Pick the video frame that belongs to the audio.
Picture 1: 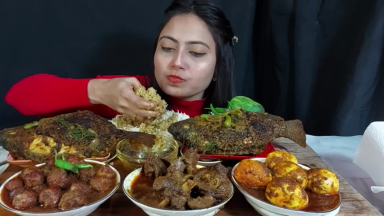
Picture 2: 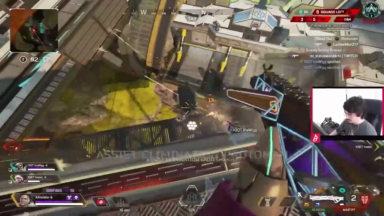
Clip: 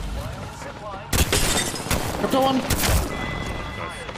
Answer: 2